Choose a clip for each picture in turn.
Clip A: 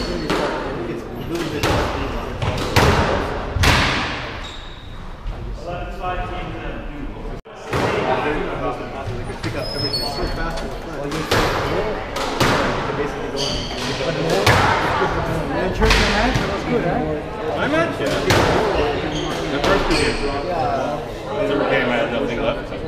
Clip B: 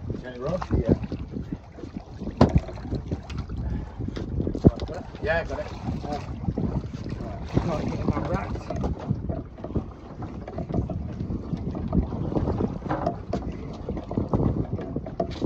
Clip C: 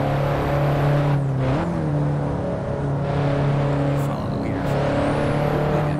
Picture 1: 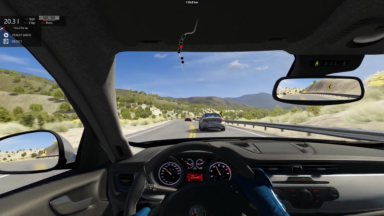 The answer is C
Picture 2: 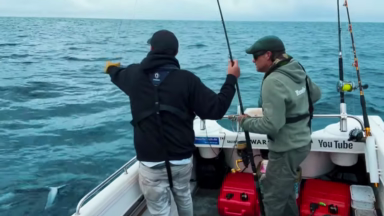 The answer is B